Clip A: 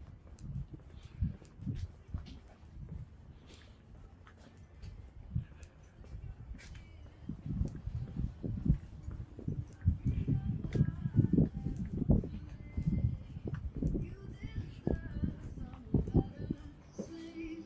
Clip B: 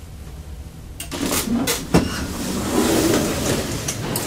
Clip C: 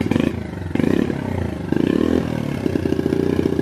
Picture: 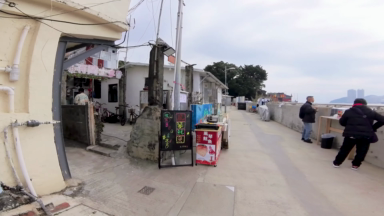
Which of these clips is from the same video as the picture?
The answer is A